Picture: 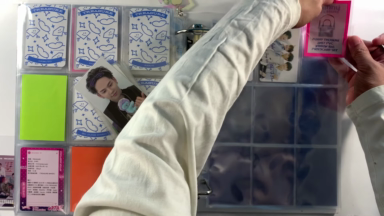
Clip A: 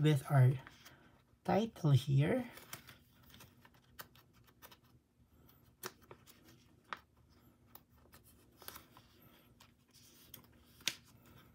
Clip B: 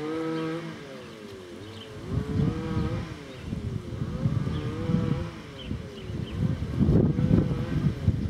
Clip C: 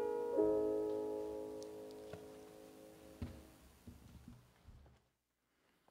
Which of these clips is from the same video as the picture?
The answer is A